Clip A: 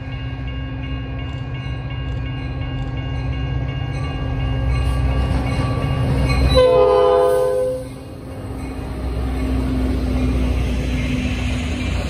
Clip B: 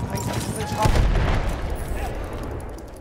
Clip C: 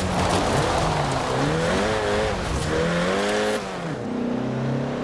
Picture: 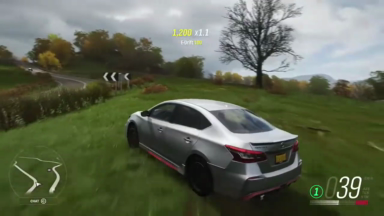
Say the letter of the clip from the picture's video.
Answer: C